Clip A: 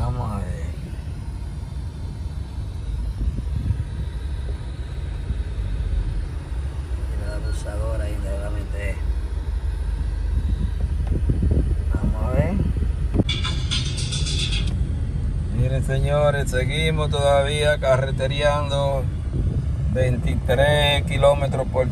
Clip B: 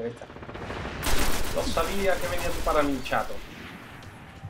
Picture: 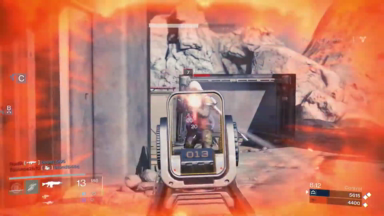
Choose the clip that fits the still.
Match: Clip B